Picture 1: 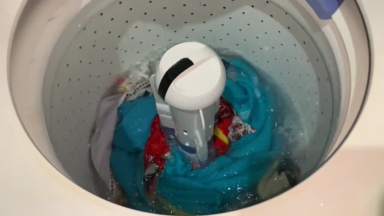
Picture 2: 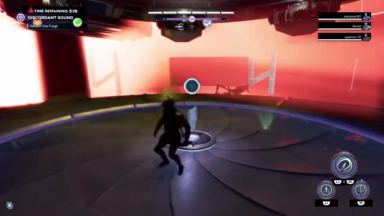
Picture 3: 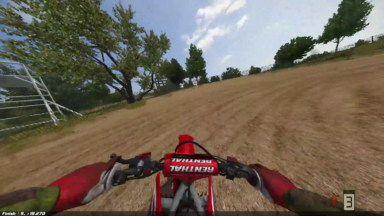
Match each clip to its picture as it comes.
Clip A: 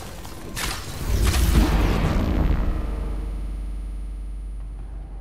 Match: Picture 2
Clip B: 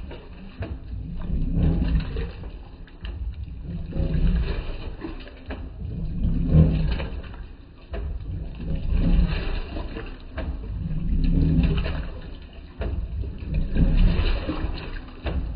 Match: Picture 1